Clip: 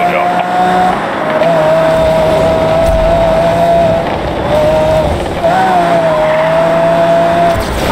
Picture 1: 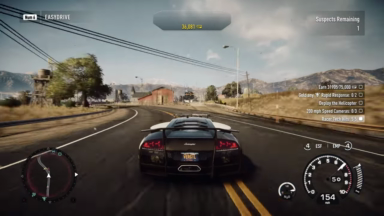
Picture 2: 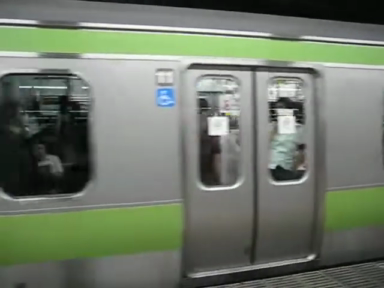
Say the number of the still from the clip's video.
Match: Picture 1